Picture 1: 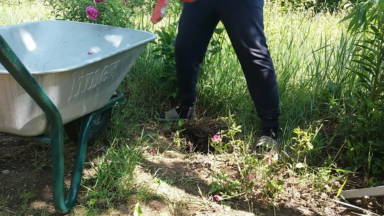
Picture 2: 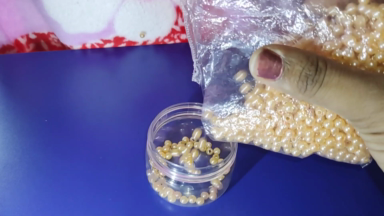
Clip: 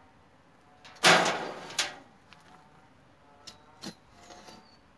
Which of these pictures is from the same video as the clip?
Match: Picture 1